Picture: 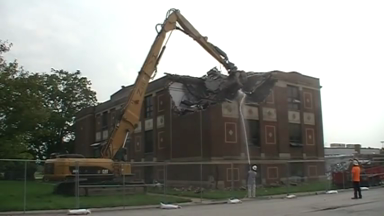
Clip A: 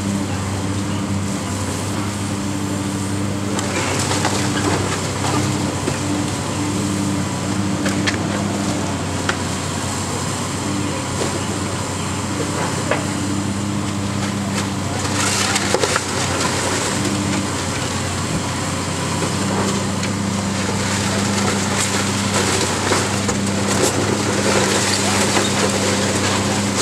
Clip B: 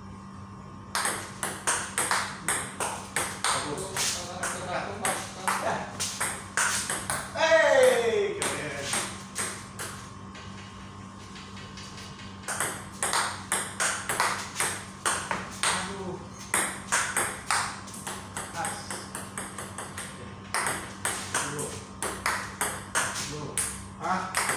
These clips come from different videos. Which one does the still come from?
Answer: A